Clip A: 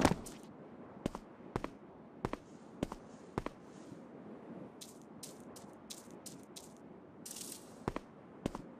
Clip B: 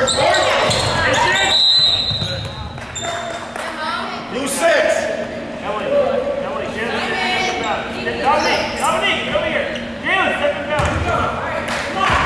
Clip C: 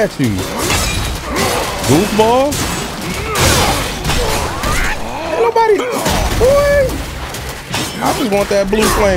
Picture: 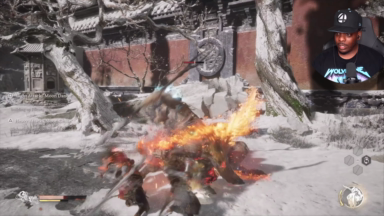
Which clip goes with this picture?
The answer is C